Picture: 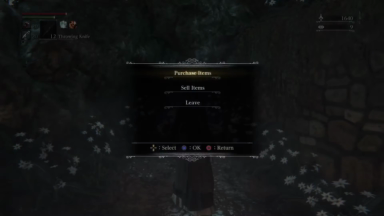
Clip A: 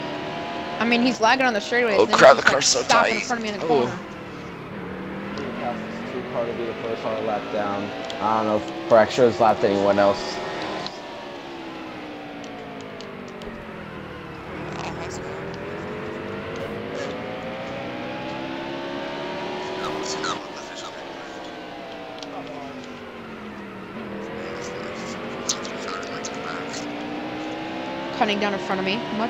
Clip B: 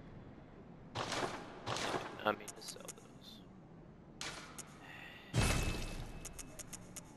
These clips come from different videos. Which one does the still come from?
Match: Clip B